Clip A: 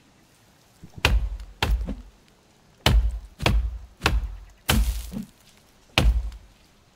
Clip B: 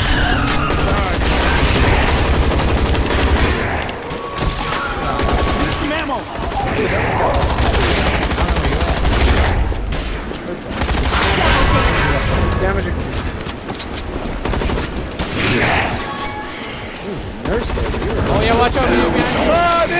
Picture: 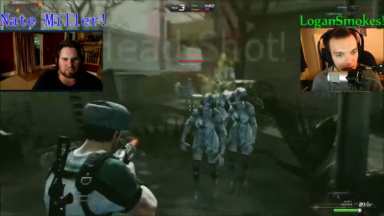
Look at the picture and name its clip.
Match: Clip B